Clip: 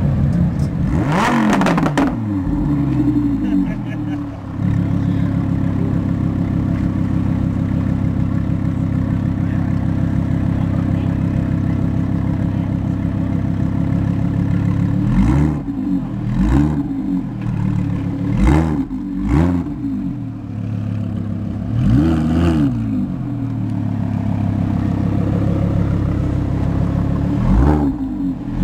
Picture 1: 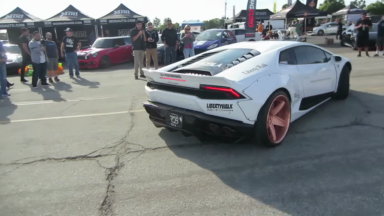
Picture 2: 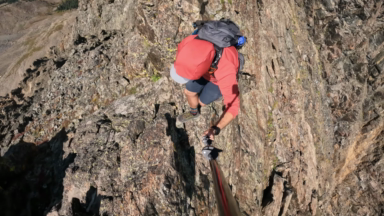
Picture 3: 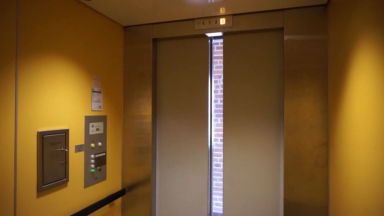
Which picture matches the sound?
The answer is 1